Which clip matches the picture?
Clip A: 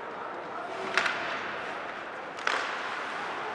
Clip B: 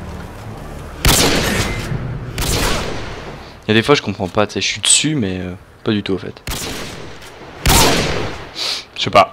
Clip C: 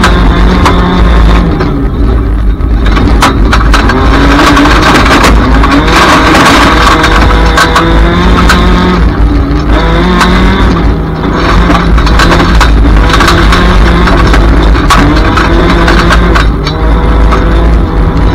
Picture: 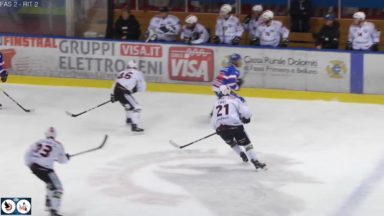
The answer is A